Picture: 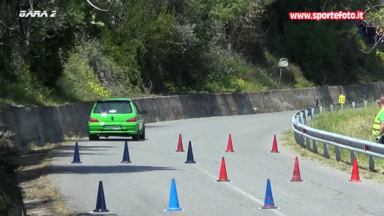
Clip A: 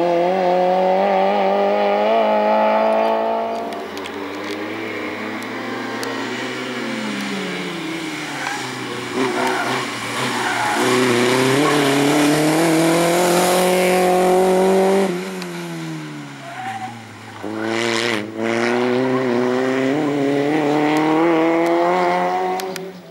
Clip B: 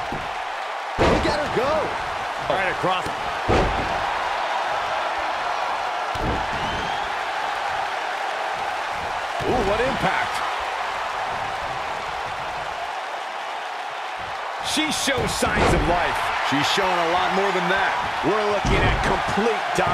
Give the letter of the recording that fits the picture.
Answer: A